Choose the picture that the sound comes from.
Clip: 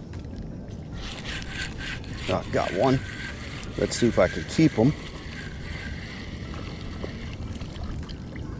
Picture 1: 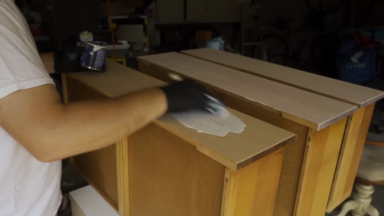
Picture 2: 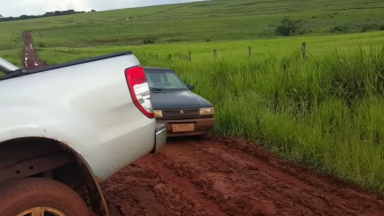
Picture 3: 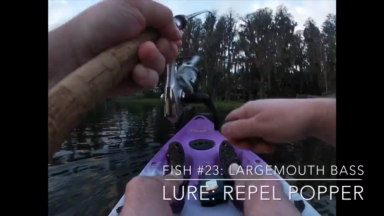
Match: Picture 3